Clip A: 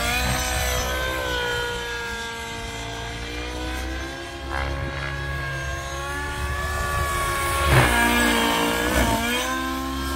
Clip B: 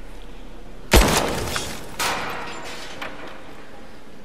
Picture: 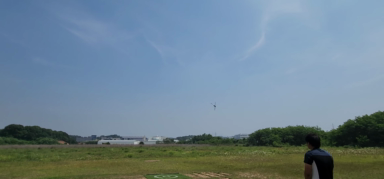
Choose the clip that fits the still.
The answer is A